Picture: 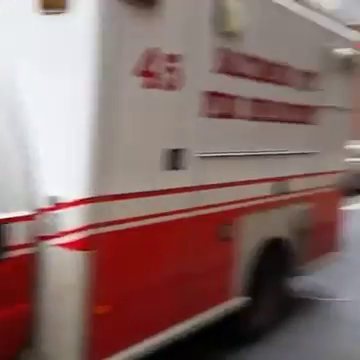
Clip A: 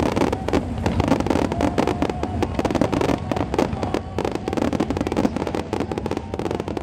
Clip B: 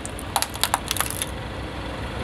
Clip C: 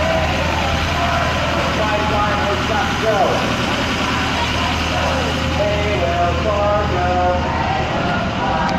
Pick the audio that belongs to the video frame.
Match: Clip C